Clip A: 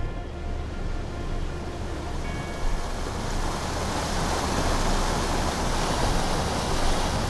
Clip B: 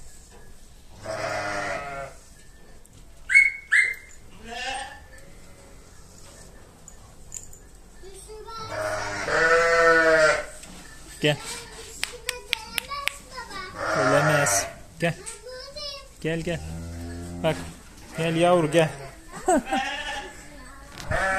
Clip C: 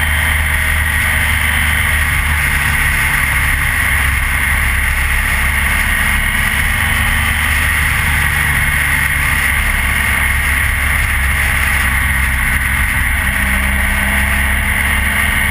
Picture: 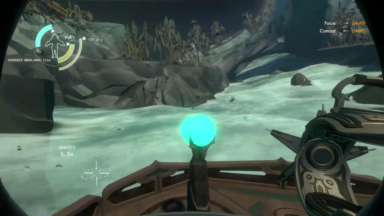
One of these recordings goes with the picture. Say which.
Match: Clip A